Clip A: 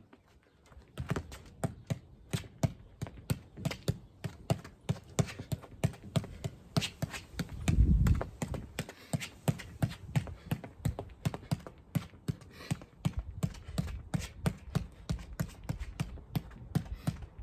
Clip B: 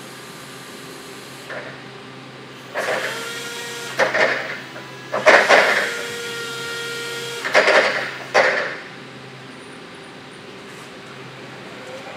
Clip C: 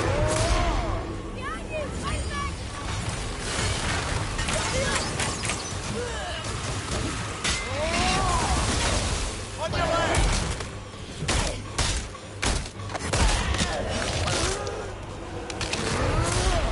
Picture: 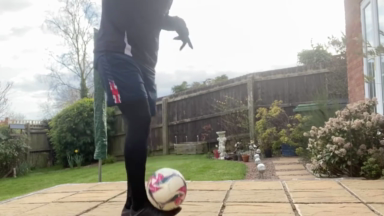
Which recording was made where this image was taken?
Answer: A